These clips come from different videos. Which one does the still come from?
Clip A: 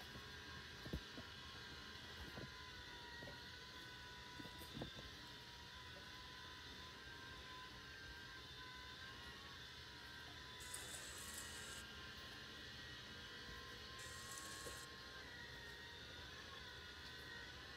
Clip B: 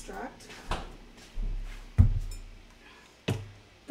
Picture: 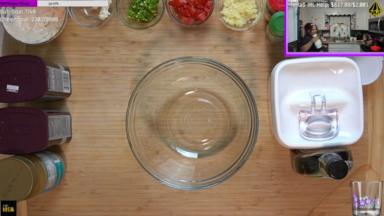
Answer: B